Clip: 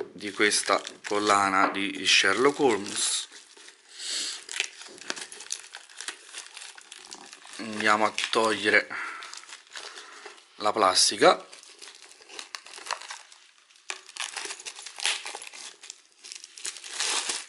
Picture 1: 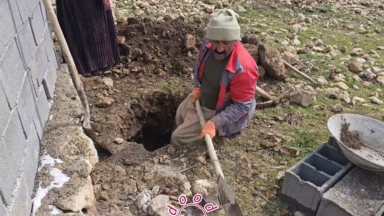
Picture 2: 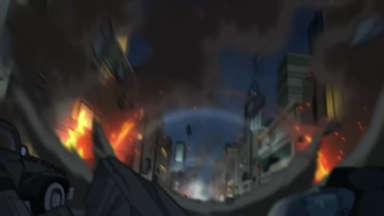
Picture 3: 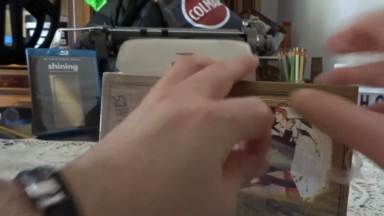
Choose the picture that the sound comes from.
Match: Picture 3